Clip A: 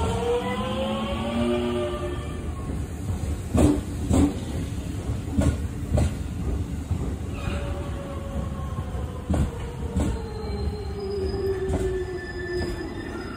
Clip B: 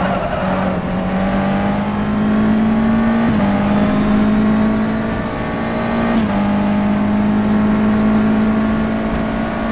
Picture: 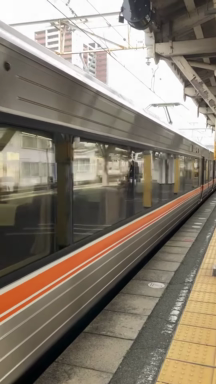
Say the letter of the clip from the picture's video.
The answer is A